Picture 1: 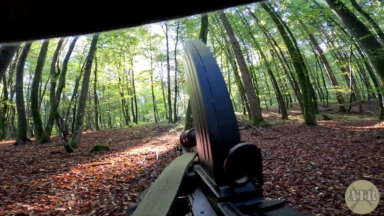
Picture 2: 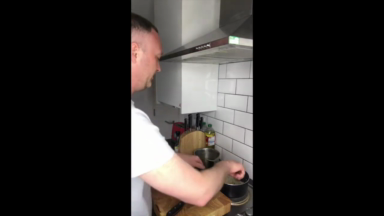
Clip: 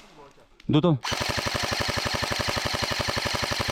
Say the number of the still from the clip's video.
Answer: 1